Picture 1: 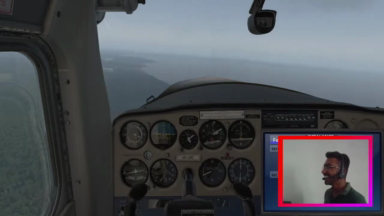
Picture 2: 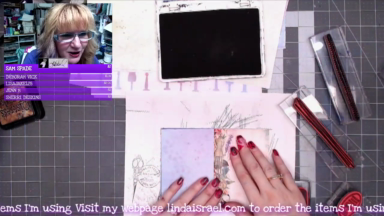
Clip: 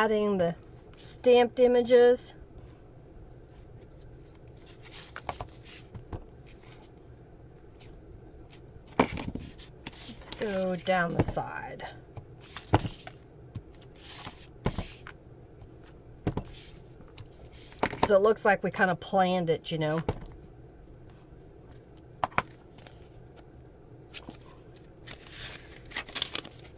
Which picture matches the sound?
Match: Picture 2